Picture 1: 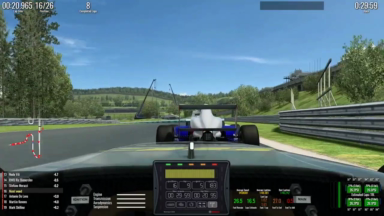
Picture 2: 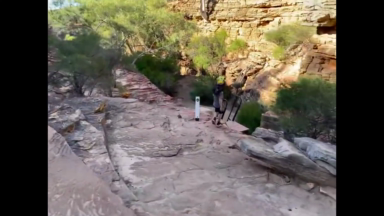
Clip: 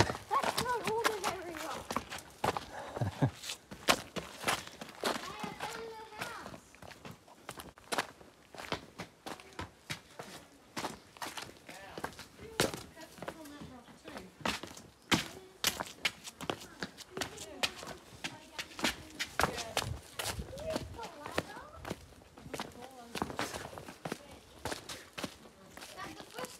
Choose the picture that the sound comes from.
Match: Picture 2